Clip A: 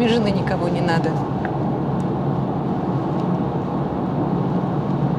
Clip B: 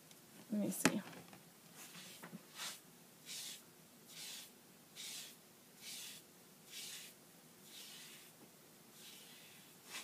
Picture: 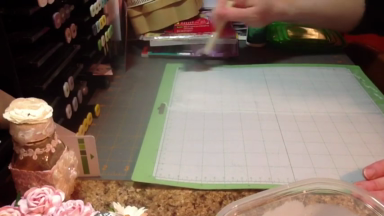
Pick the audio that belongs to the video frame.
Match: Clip B